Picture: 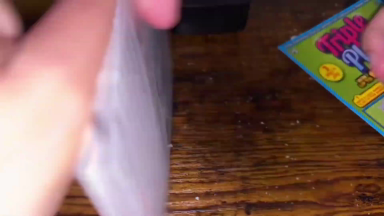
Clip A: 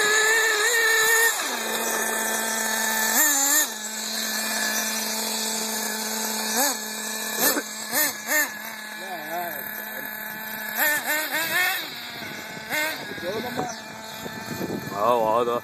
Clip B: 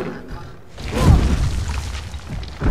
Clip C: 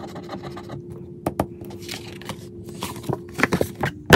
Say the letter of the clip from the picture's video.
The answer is C